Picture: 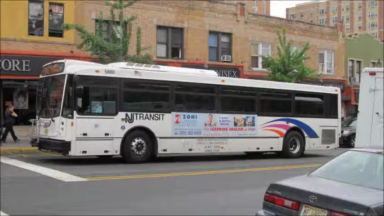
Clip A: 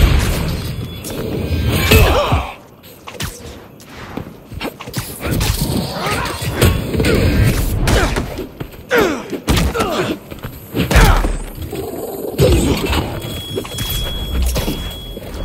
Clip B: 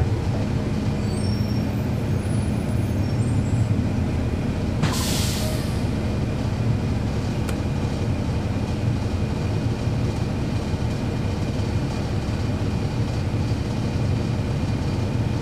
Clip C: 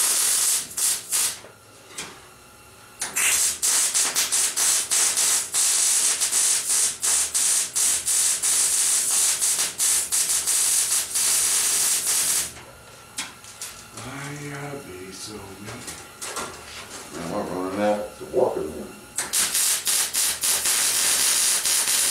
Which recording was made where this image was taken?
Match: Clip B